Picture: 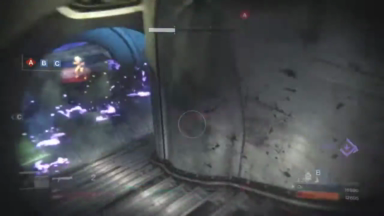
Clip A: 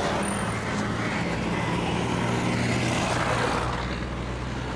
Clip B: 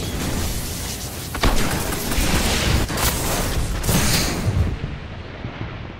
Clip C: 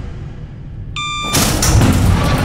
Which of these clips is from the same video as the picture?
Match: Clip B